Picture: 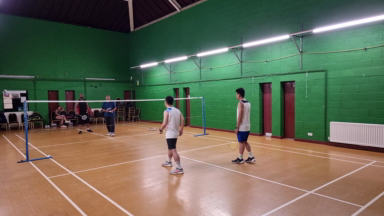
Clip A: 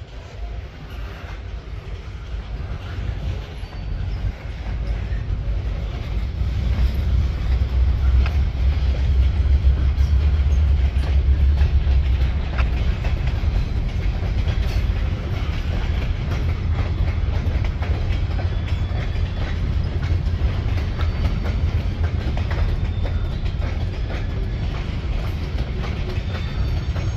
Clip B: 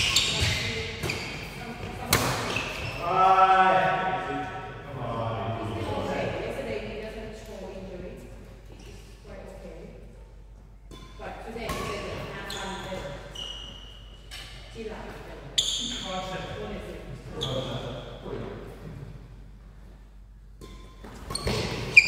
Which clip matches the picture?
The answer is B